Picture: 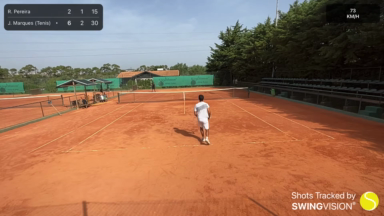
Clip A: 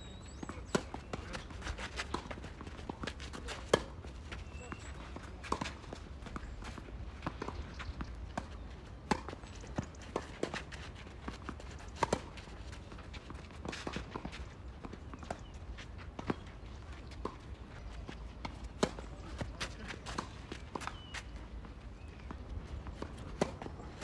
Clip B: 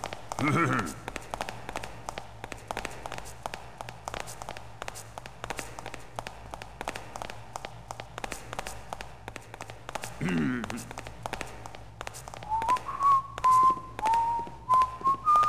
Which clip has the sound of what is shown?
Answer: A